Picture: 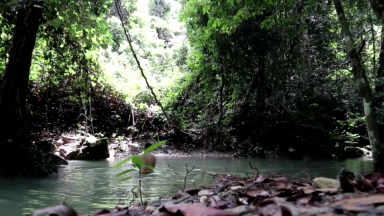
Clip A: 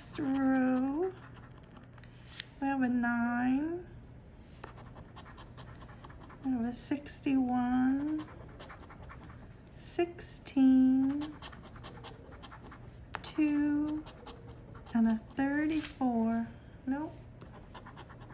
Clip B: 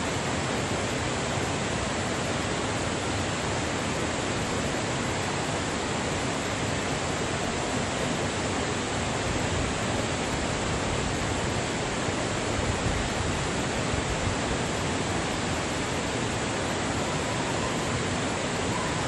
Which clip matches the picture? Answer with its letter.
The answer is B